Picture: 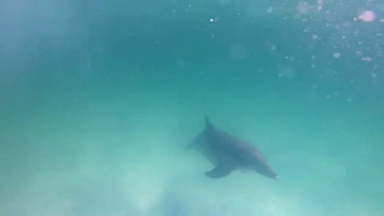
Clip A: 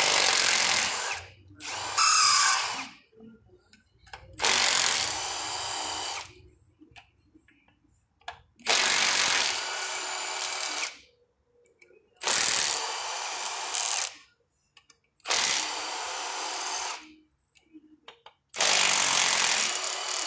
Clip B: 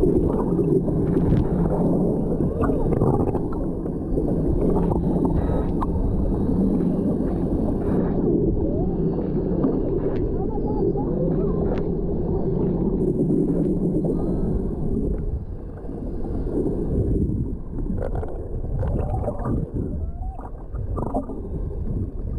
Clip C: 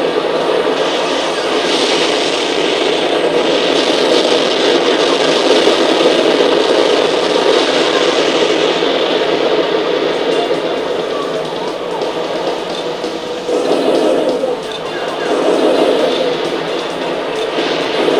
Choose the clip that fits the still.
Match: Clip B